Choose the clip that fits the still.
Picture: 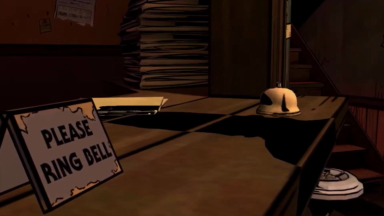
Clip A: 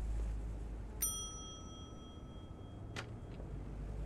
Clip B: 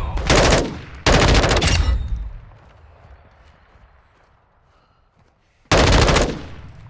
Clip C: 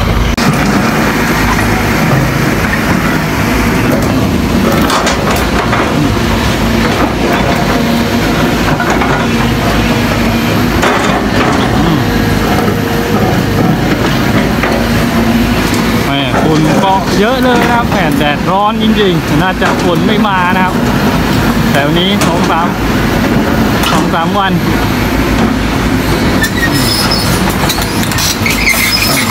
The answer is A